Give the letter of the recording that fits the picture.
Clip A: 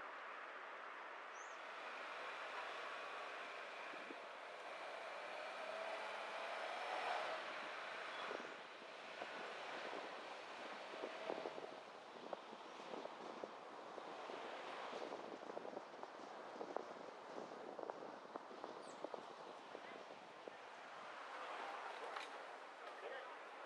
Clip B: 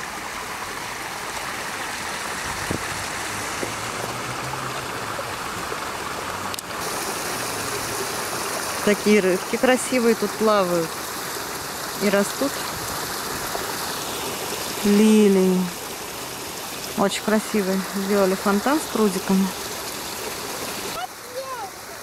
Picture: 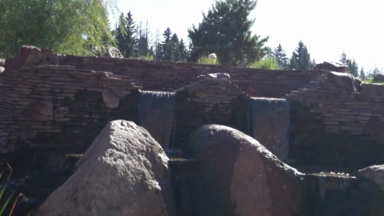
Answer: B